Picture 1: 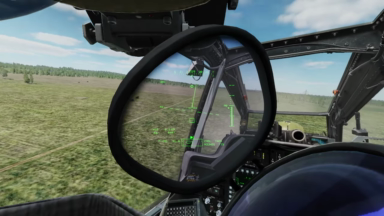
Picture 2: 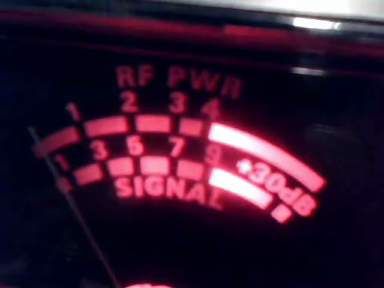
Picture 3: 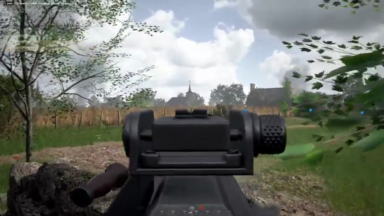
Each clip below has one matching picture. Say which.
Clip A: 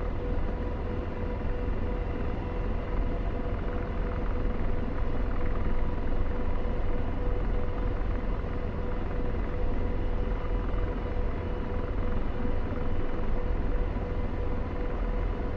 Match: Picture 1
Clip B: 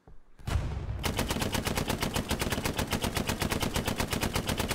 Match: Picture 3